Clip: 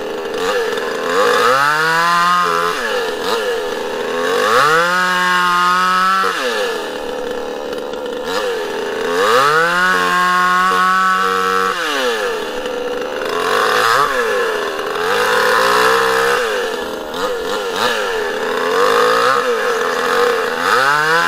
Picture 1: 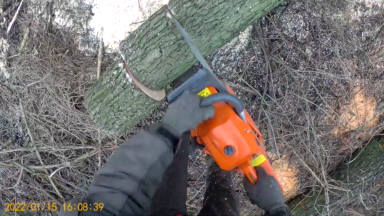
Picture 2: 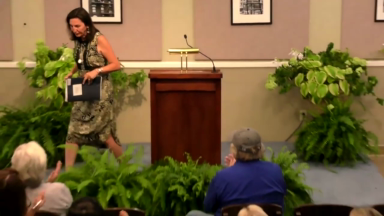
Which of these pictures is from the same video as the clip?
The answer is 1